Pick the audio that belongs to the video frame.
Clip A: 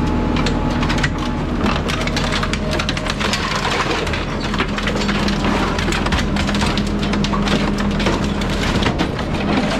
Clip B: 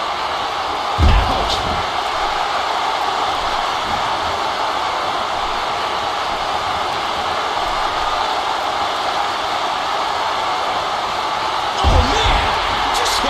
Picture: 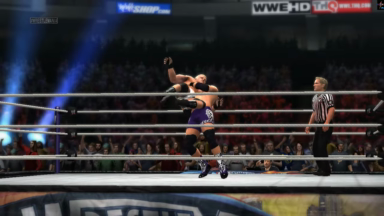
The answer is B